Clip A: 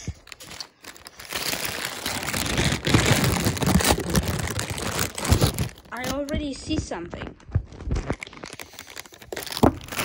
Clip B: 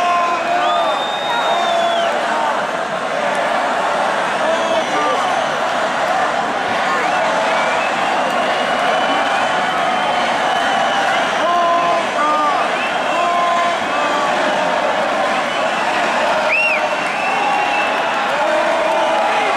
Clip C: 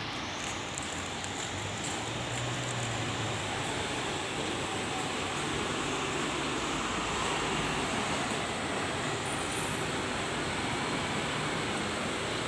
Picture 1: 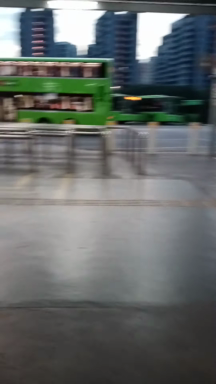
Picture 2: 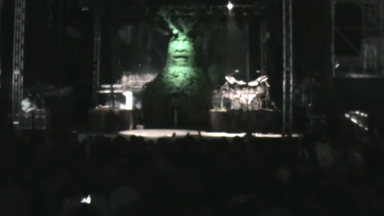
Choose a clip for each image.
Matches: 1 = C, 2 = B